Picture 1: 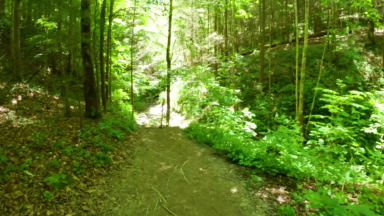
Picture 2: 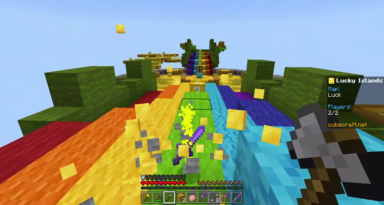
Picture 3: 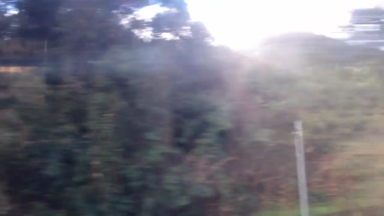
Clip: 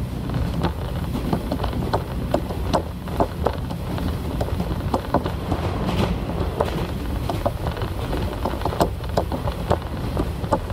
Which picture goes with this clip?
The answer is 3